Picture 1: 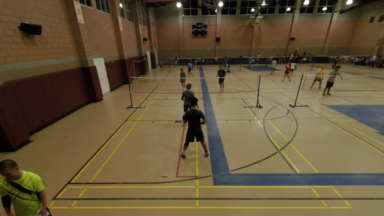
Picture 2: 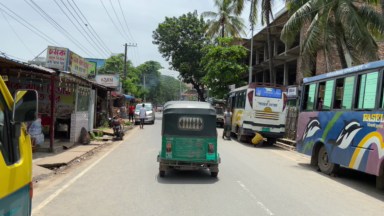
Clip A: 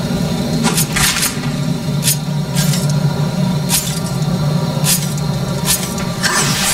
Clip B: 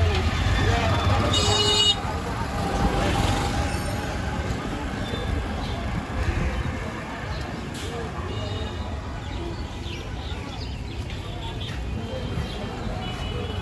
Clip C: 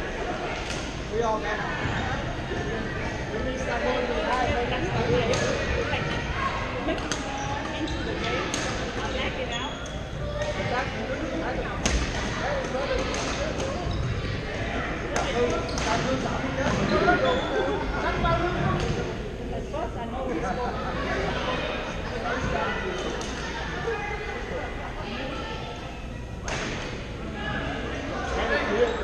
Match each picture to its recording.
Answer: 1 C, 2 B